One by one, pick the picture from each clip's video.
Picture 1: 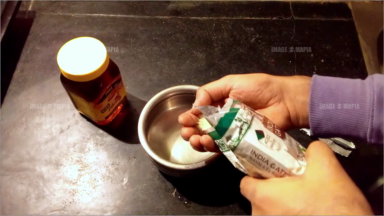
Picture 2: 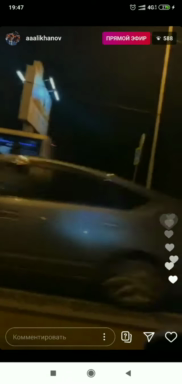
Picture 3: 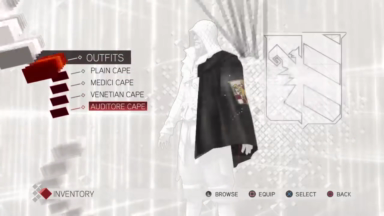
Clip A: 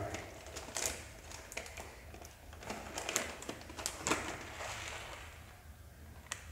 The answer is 1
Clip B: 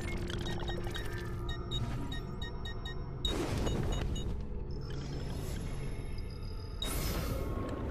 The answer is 3